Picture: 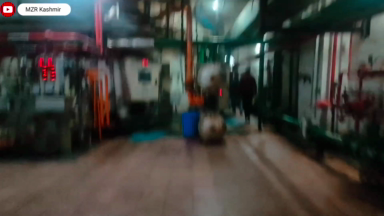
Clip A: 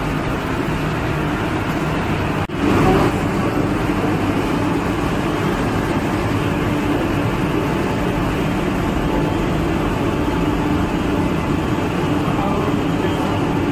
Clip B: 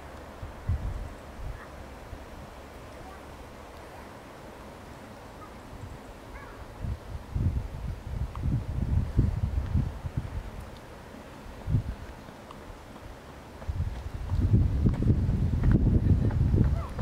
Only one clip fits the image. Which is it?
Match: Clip A